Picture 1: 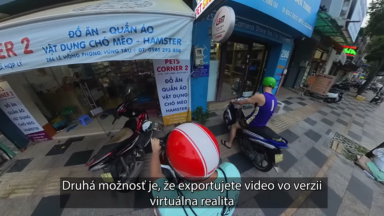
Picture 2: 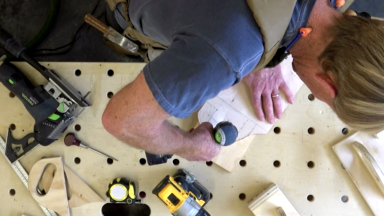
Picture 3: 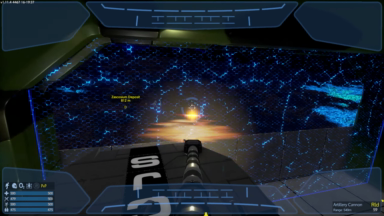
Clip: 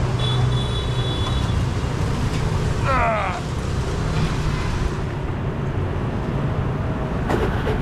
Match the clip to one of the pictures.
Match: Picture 1